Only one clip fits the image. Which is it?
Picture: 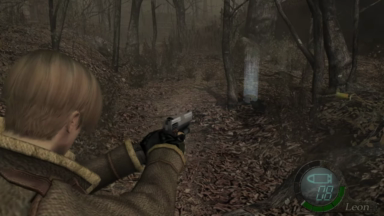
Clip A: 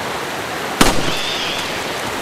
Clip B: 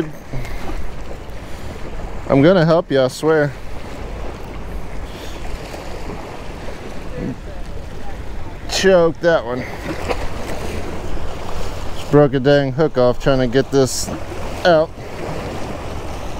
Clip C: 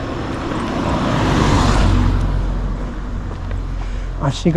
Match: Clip A